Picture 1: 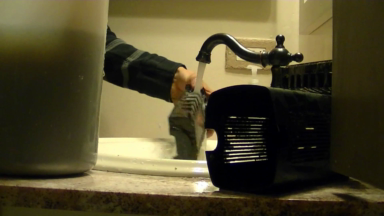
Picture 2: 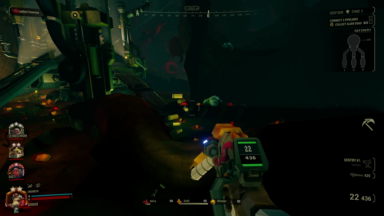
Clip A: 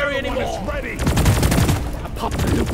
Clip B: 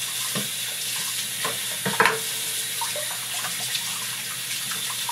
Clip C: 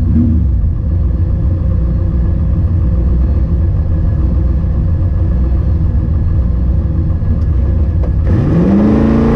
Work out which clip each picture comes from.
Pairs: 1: B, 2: A